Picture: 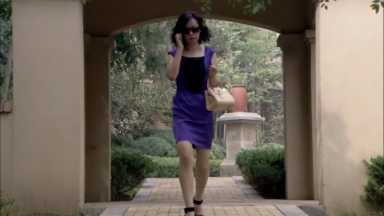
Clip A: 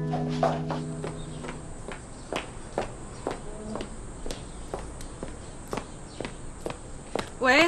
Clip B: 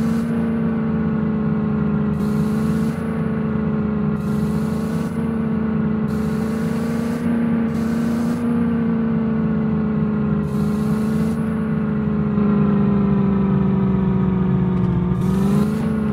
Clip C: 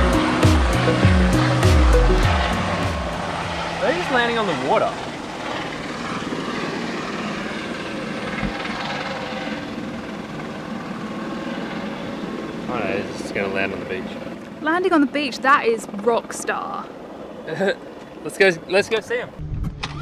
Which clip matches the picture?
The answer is A